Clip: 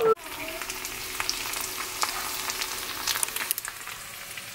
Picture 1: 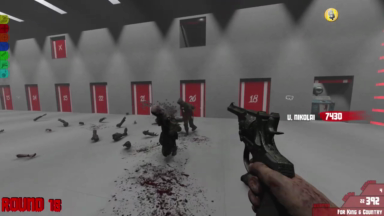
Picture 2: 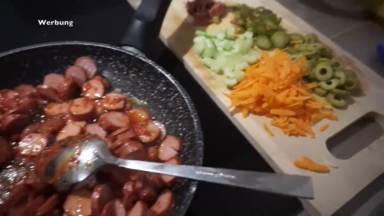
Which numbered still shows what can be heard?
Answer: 2